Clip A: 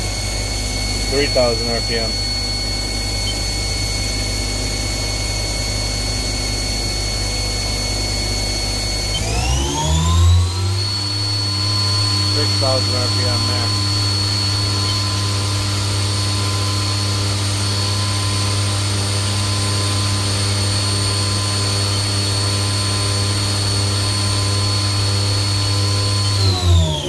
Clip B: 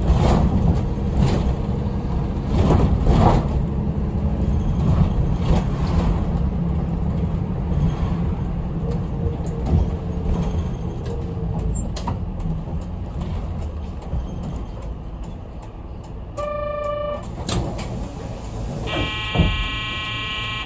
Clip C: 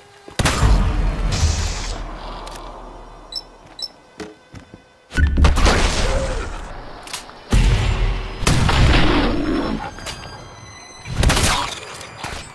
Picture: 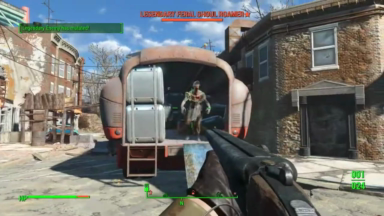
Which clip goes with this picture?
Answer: C